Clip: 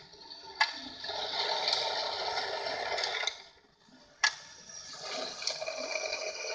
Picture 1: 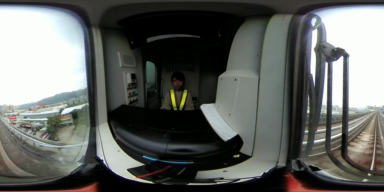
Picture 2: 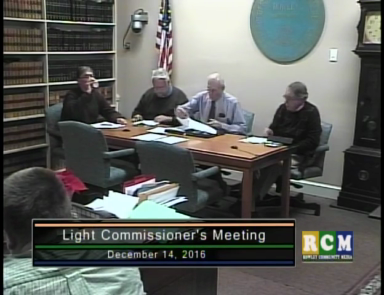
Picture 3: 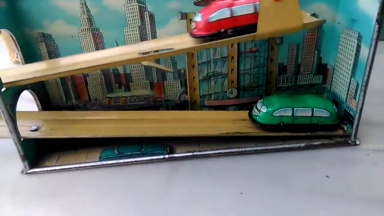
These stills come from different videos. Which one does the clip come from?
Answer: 3